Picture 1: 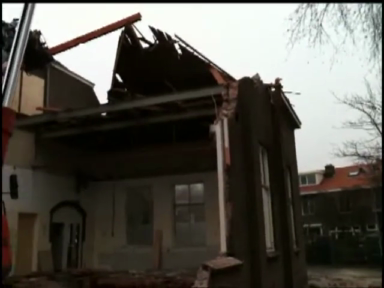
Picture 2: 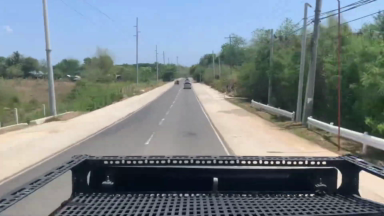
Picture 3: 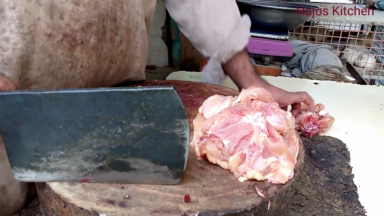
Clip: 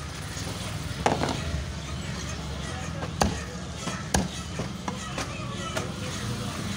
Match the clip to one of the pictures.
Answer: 3